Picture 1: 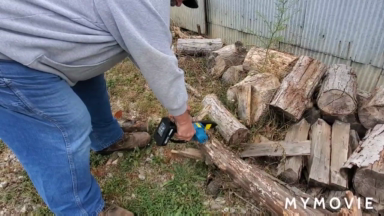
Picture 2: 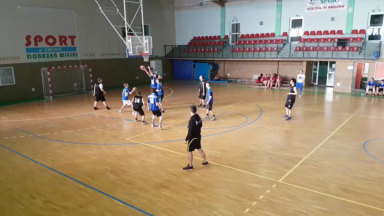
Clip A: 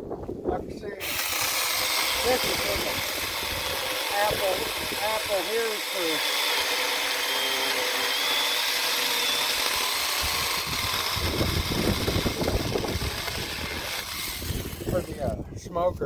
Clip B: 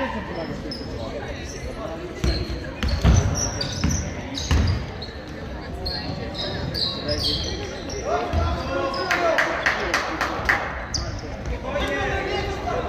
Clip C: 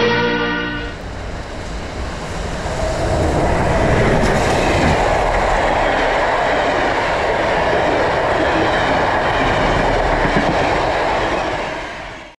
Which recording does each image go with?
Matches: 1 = A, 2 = B